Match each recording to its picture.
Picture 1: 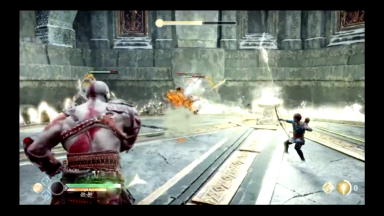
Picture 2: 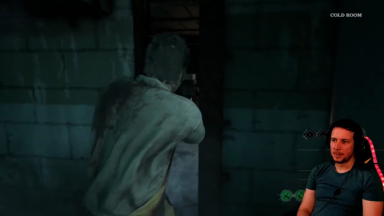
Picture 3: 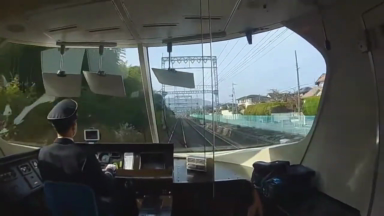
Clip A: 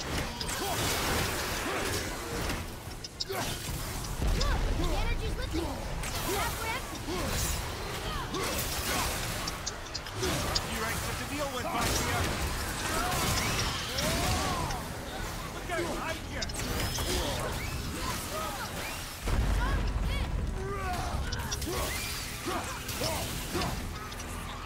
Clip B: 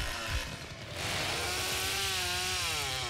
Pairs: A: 1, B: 2